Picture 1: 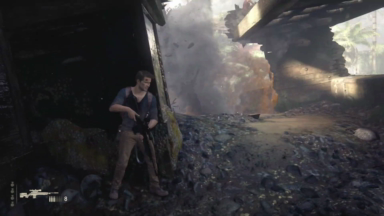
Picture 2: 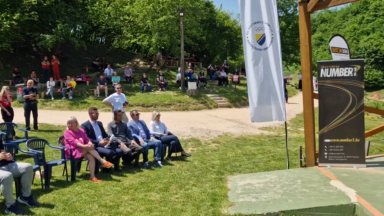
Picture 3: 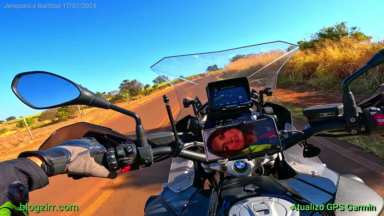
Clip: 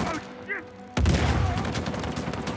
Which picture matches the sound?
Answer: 1